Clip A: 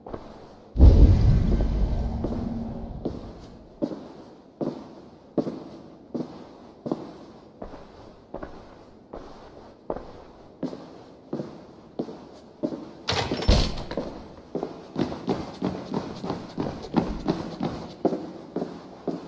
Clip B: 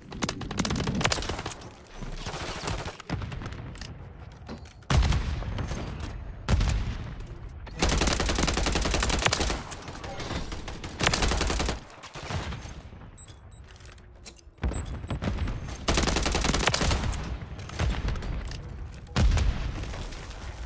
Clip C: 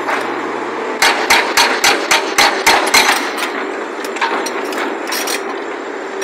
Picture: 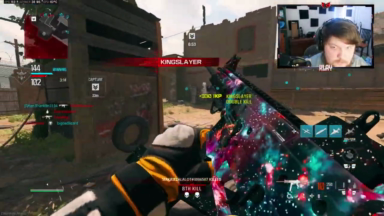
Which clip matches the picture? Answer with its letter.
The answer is B